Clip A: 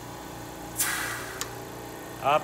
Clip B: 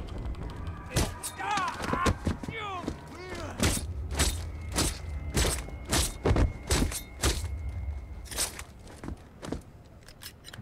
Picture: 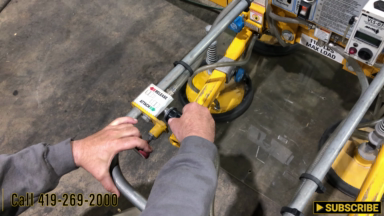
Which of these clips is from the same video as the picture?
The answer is A